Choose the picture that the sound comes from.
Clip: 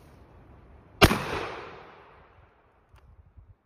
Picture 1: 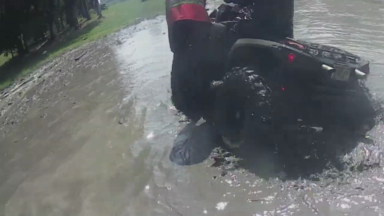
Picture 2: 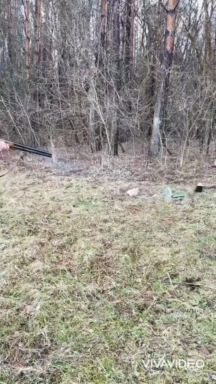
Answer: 2